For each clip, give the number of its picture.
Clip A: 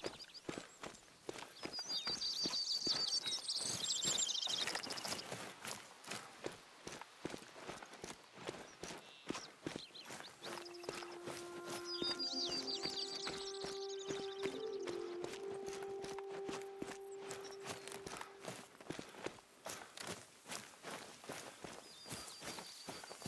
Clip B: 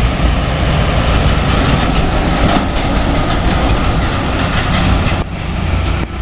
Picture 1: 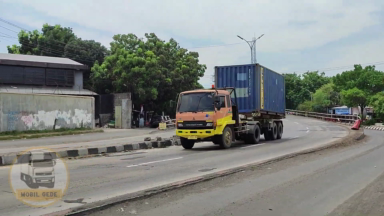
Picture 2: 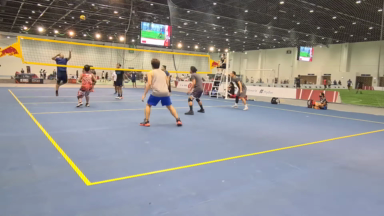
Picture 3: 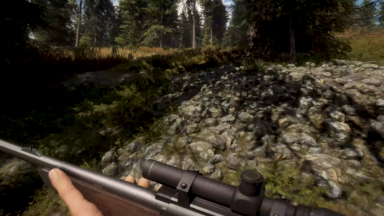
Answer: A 3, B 1